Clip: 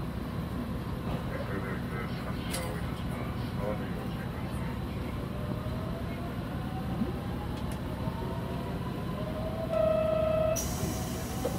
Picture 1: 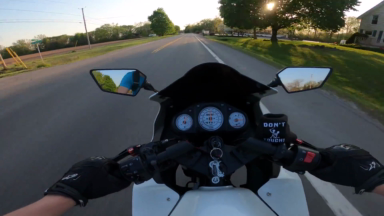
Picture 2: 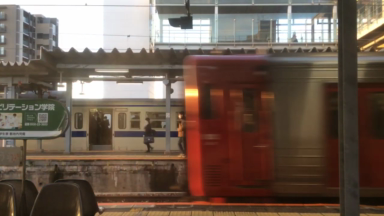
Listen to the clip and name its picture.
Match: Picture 2